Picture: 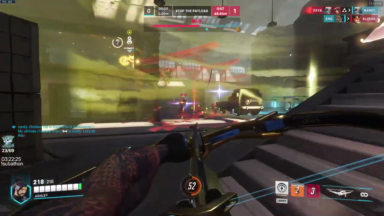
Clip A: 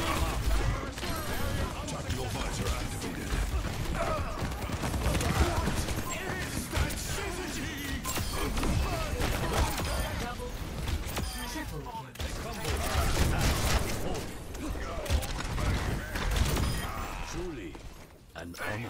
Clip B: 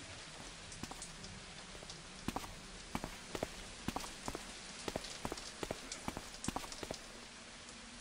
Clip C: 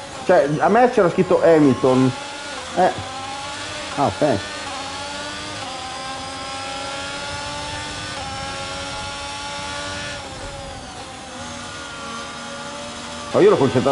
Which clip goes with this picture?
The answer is A